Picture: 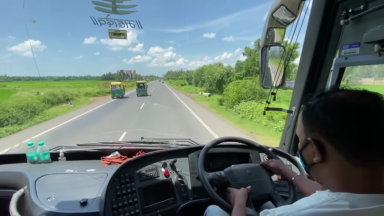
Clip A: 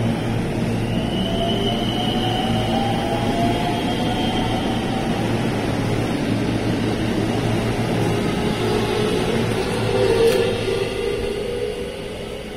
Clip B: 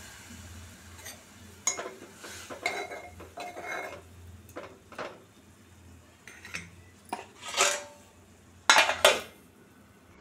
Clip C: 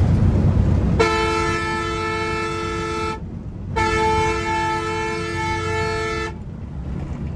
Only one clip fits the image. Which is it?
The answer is C